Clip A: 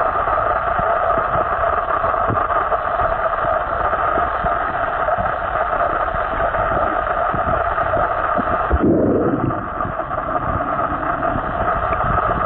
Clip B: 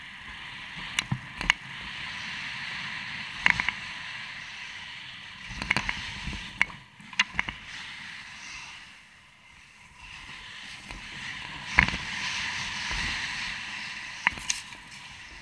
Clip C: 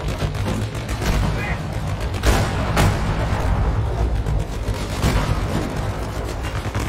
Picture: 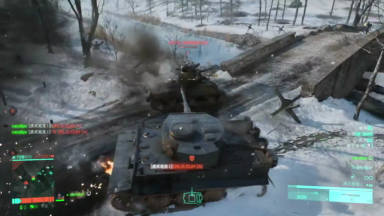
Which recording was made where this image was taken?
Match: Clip C